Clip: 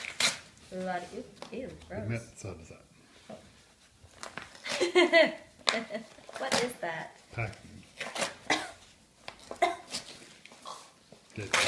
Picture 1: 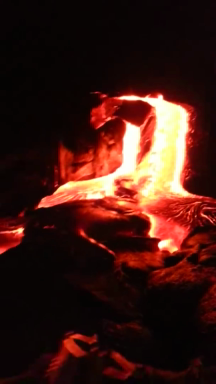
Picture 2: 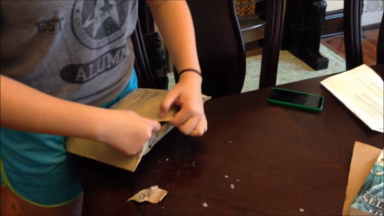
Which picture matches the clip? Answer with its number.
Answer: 2